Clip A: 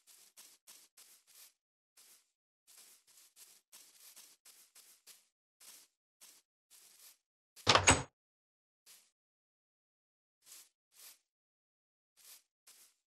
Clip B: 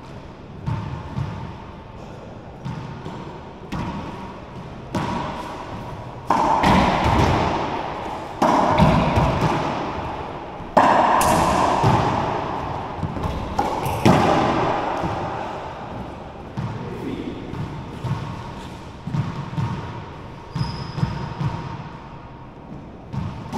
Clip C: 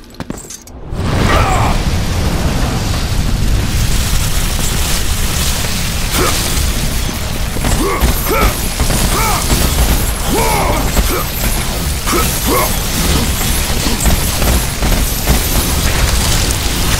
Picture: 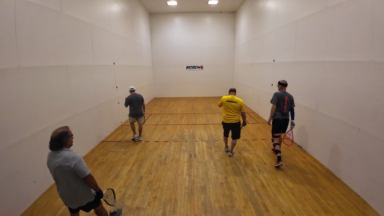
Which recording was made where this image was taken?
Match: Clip B